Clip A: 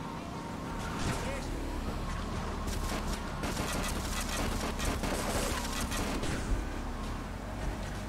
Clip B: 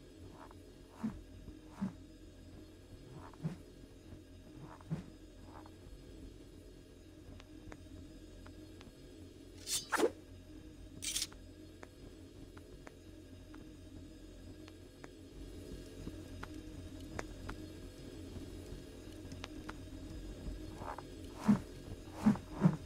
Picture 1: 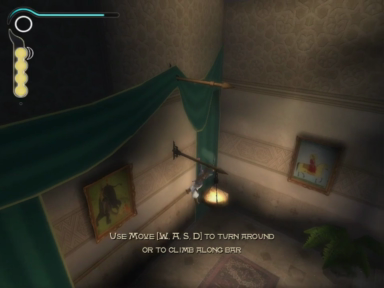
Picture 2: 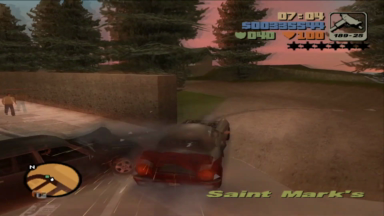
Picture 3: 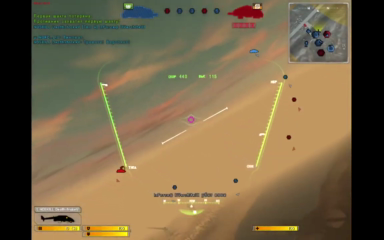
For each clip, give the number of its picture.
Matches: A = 2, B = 1